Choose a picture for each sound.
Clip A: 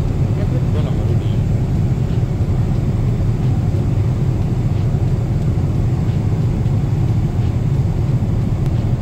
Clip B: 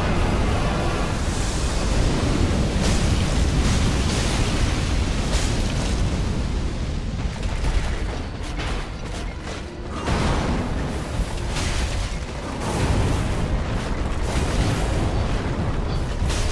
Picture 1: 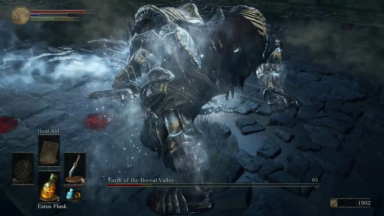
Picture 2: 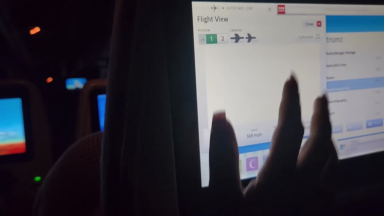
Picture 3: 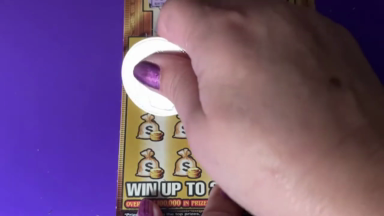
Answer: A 2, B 1